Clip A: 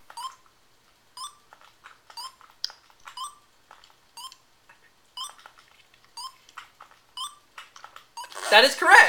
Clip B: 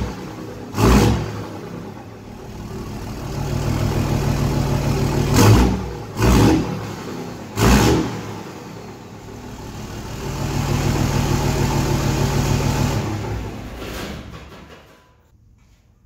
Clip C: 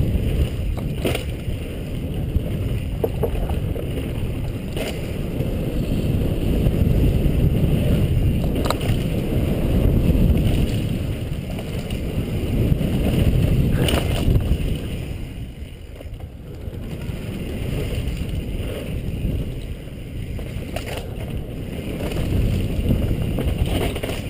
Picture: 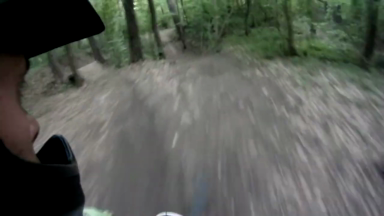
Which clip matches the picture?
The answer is C